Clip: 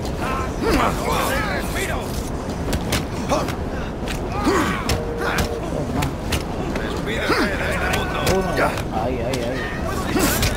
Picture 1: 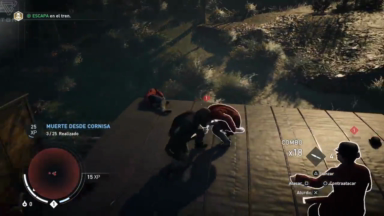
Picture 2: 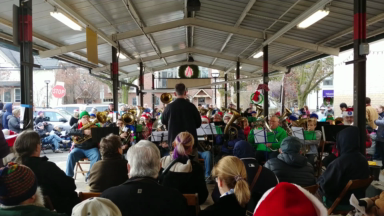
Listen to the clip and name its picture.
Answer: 1